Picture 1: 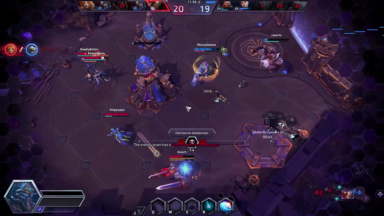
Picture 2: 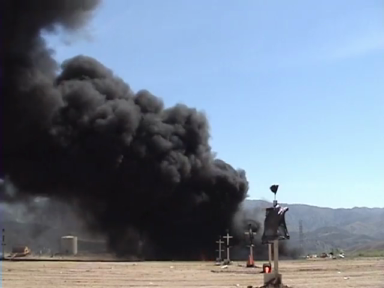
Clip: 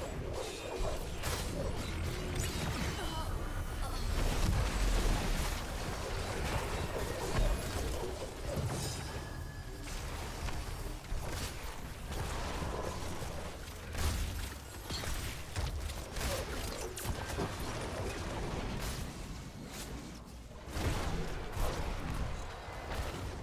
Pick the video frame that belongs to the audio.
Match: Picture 1